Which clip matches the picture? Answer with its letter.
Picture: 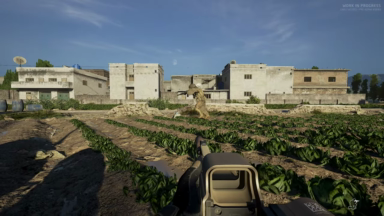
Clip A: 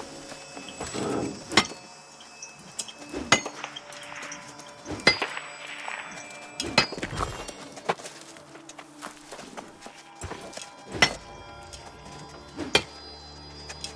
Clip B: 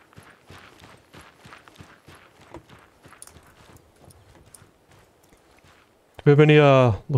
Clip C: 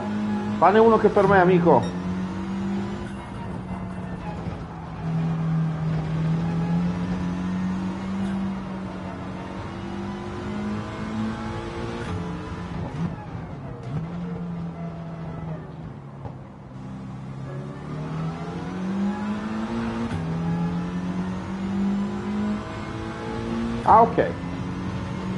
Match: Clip B